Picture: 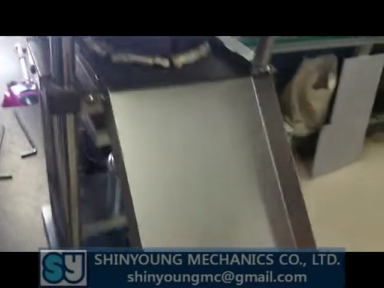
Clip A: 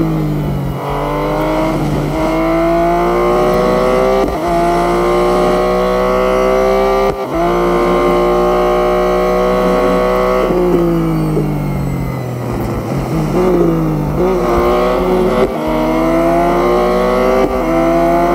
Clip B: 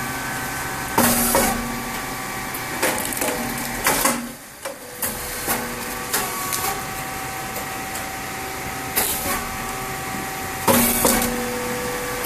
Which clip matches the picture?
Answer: B